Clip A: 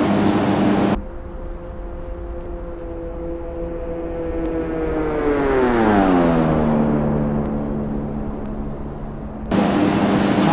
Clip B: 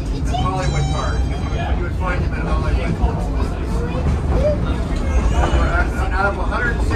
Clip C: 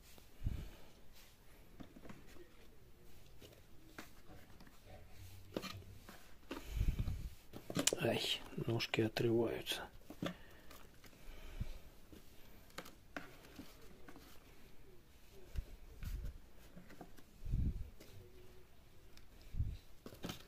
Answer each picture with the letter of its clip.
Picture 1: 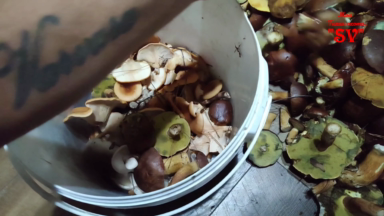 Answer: C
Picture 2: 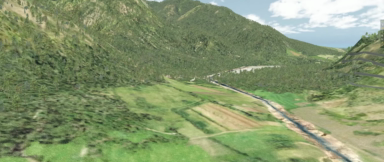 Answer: A